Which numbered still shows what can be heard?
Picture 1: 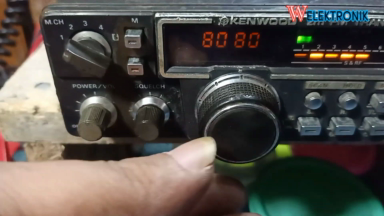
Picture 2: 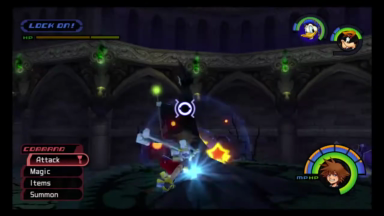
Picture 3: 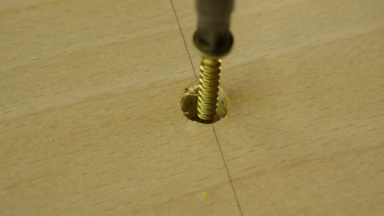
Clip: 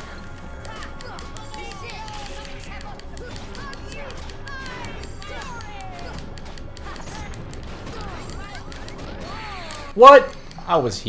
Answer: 2